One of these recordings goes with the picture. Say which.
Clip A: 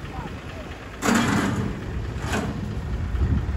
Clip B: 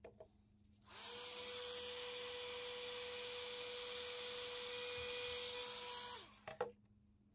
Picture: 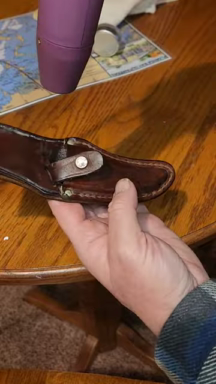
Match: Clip B